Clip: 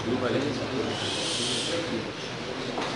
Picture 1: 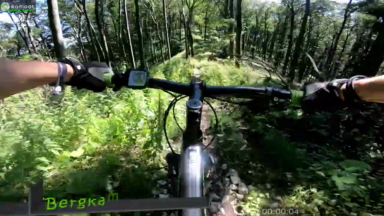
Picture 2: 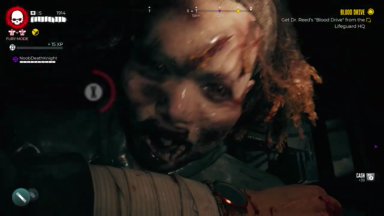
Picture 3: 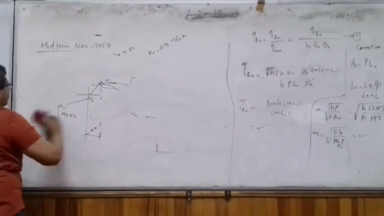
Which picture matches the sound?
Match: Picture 3